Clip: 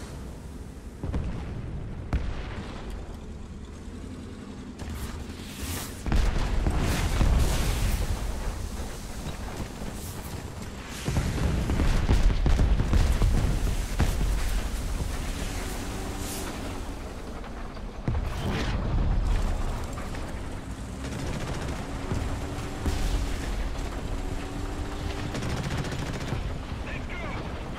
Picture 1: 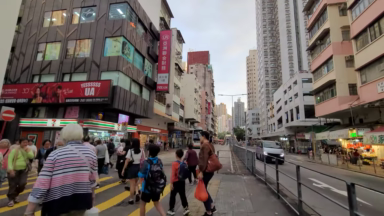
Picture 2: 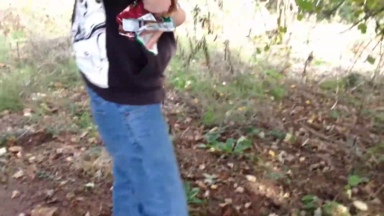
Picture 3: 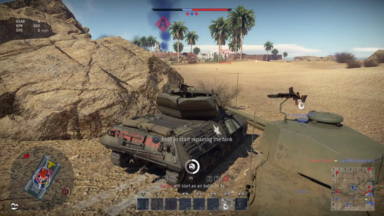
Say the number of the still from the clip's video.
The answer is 3